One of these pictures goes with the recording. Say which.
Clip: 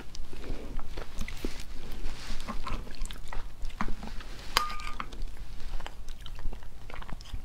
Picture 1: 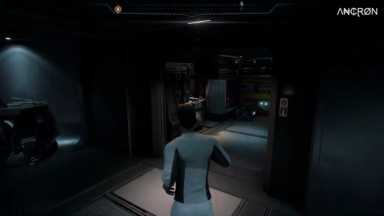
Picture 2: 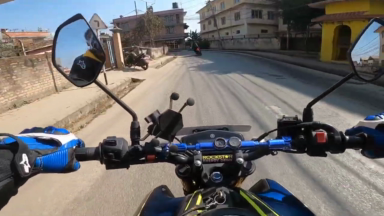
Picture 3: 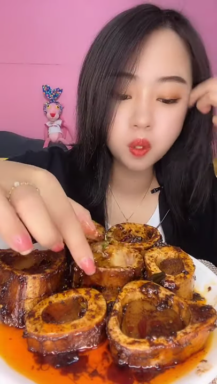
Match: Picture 3